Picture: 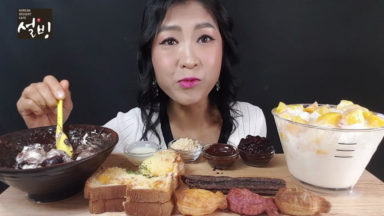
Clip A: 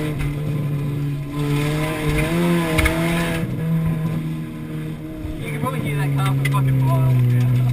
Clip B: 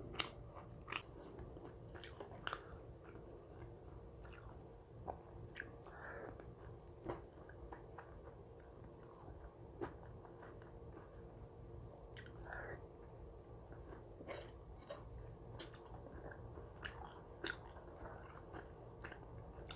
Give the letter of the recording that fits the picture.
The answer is B